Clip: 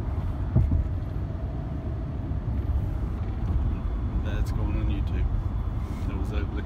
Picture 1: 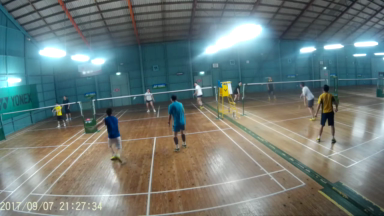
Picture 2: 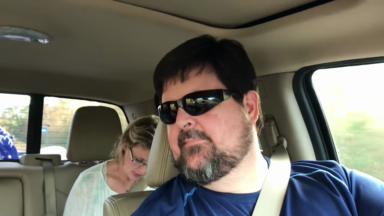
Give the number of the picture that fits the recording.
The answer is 2